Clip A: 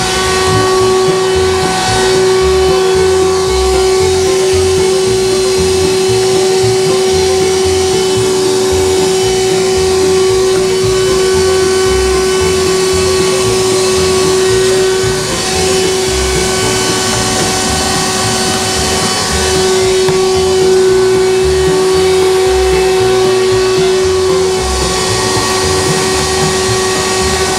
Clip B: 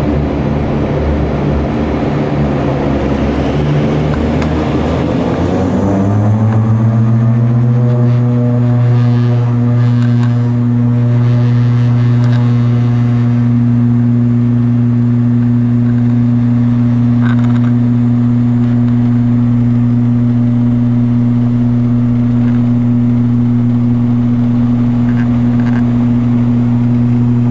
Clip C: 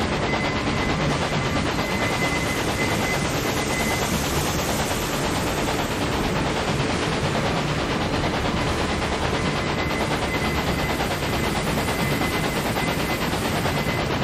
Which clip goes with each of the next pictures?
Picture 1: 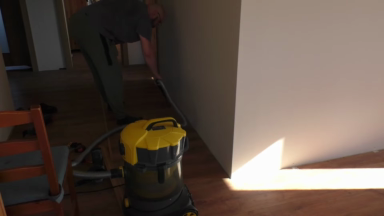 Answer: A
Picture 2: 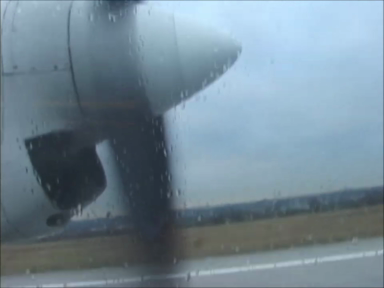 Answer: B